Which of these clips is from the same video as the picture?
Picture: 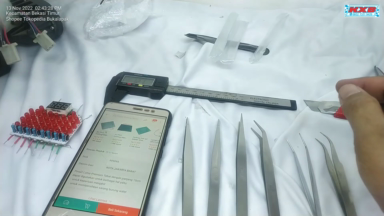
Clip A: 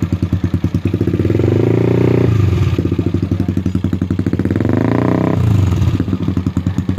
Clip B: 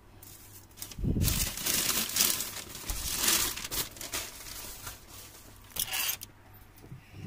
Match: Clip B